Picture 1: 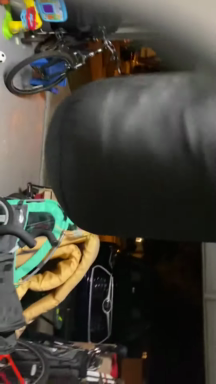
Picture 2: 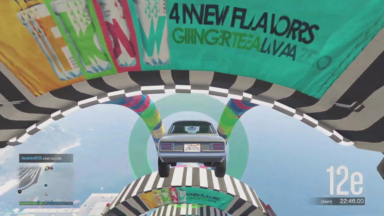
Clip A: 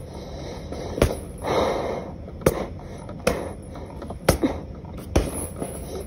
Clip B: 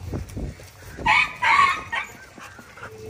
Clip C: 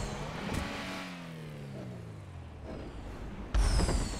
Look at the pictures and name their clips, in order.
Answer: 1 A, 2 C